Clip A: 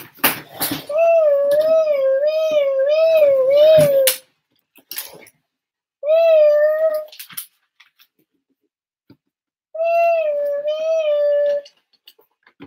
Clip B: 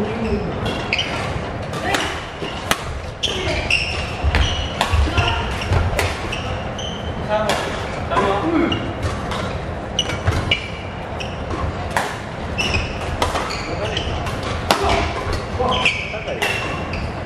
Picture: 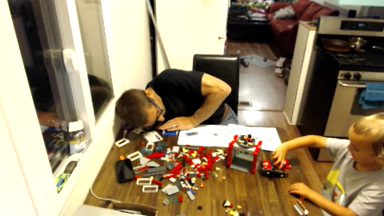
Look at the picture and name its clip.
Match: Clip A